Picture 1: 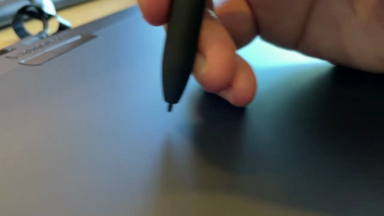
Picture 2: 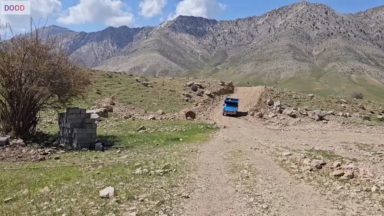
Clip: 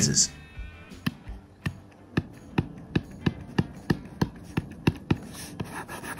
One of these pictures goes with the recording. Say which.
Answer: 1